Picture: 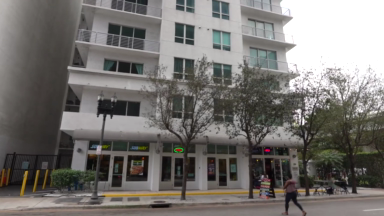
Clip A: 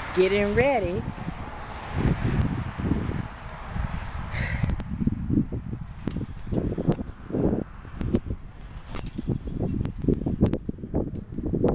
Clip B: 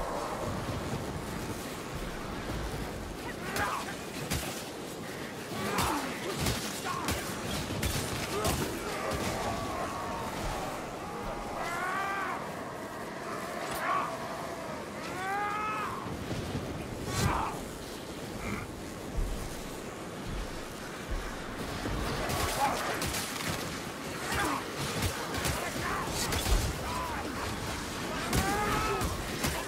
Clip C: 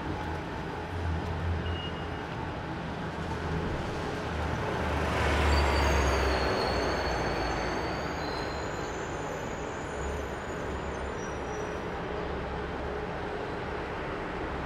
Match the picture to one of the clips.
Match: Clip C